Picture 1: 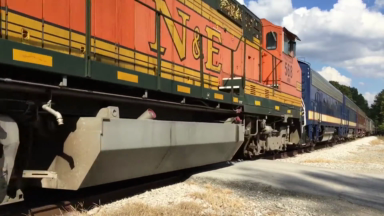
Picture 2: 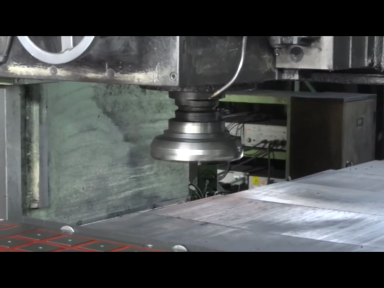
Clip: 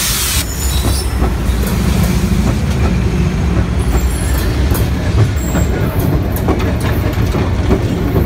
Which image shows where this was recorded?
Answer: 1